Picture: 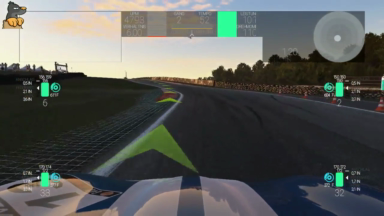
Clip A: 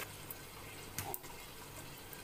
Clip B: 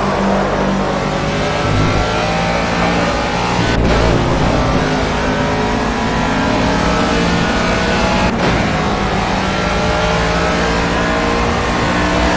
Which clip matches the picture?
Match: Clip B